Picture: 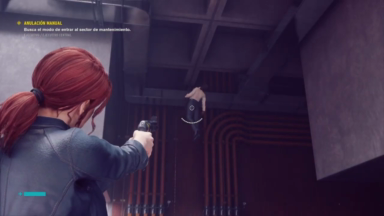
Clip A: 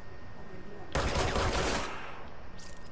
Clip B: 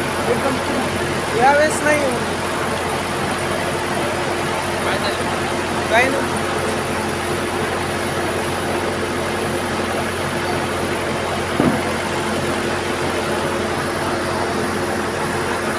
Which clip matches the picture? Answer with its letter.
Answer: A